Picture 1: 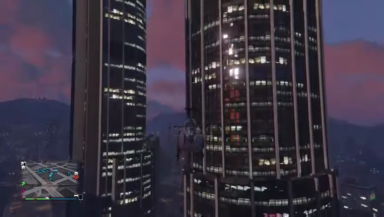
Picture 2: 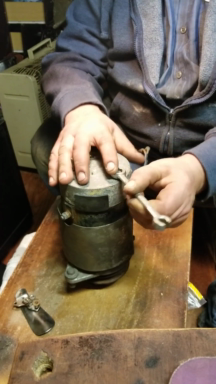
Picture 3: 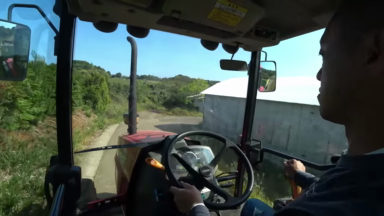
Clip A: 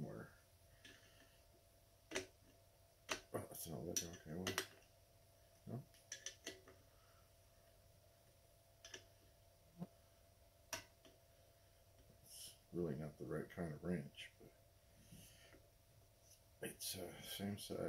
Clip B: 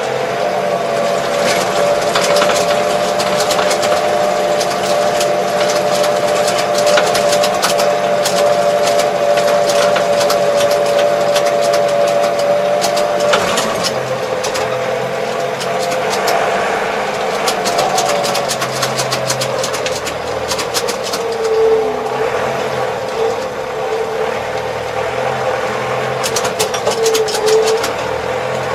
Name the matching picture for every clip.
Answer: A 2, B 3